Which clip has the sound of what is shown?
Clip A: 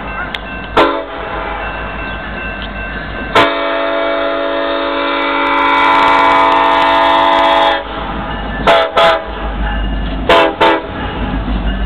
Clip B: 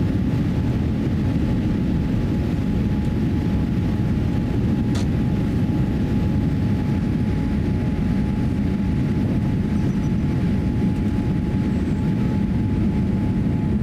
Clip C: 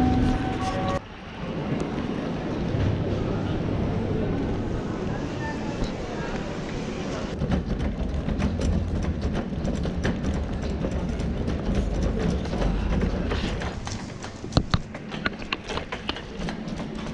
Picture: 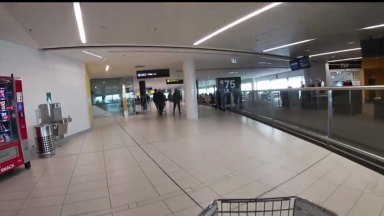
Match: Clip C